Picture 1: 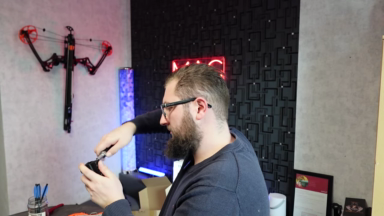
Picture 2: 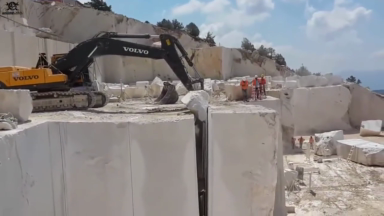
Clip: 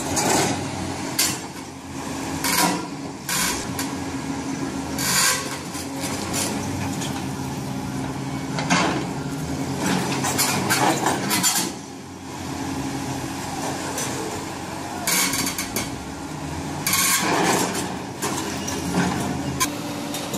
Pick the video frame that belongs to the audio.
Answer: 2